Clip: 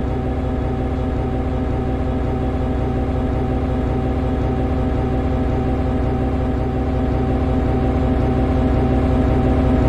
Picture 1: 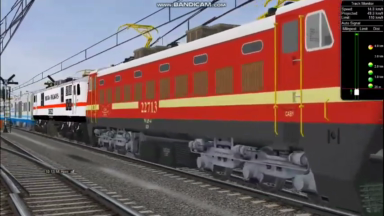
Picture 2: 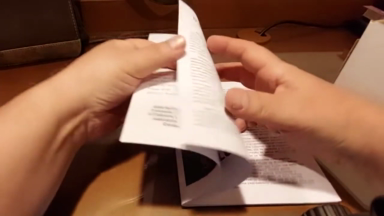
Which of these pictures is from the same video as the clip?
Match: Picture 1